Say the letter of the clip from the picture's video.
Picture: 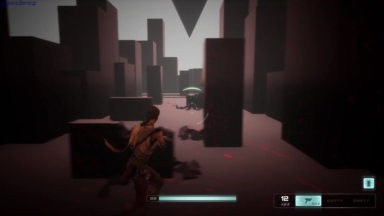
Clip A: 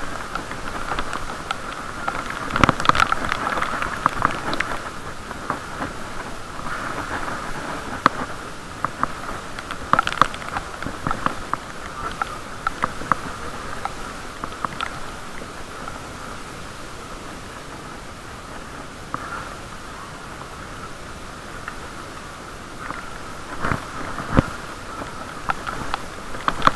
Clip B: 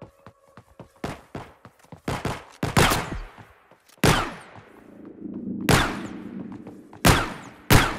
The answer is B